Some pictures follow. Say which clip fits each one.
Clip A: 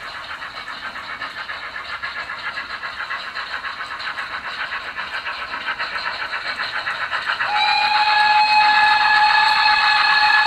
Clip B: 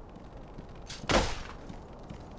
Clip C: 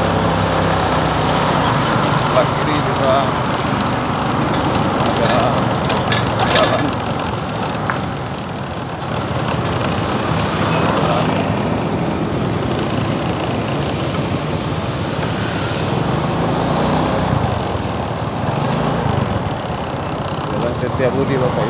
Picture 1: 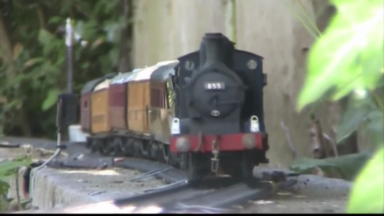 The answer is A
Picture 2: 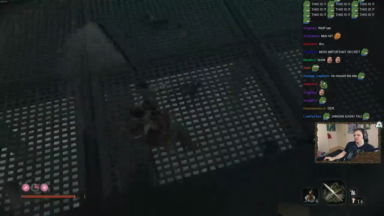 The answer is B